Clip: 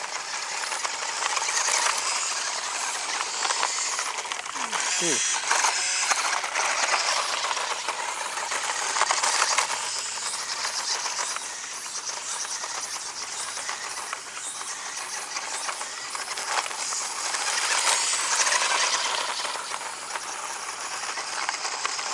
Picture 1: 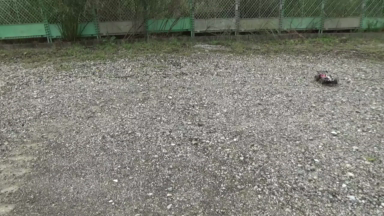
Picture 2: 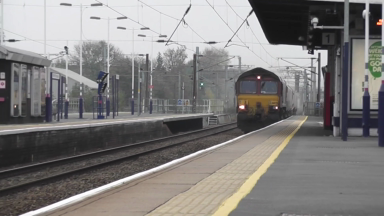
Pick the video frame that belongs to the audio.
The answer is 1